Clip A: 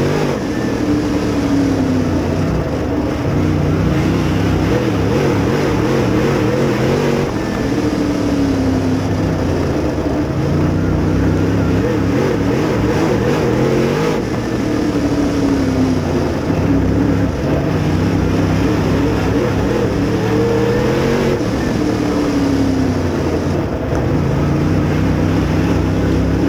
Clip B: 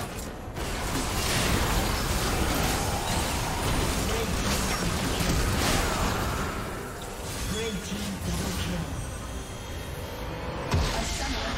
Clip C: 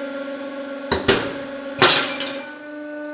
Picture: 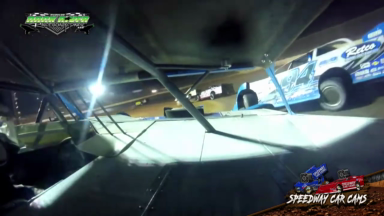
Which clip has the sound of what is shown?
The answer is A